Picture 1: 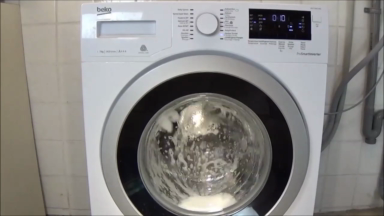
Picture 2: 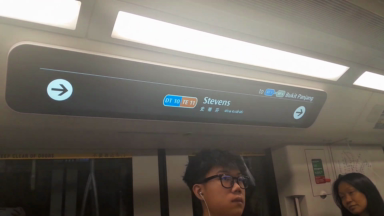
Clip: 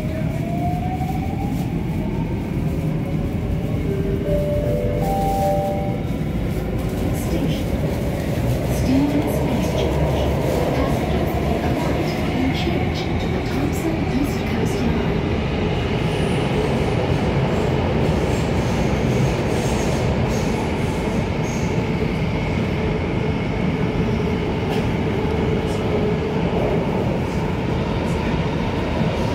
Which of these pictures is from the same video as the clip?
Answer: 2